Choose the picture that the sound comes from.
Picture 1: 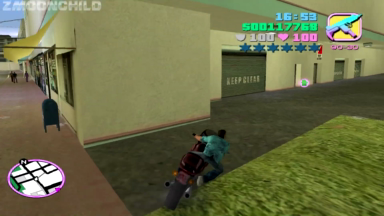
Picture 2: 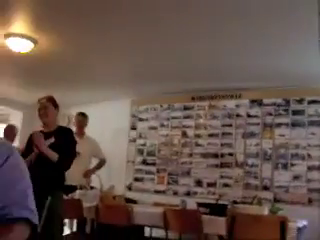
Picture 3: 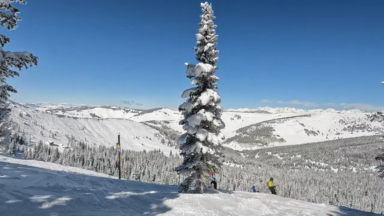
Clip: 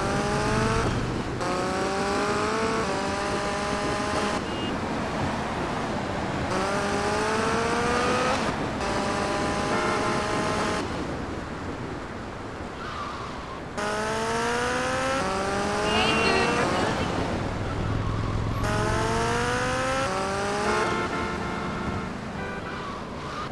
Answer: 1